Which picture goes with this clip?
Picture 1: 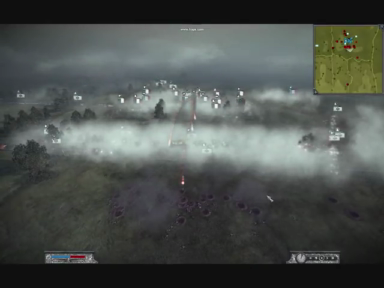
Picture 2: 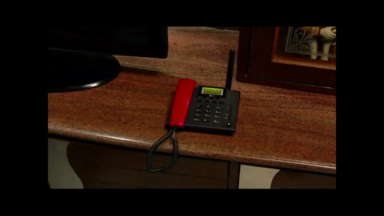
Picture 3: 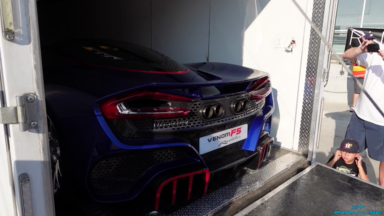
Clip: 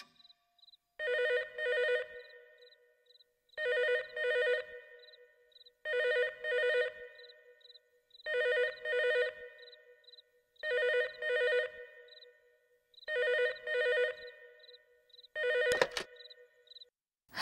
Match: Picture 2